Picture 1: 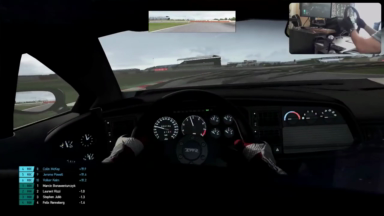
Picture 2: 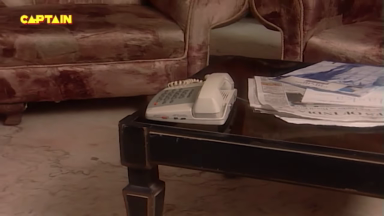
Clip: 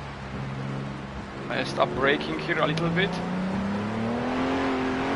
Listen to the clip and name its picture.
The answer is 1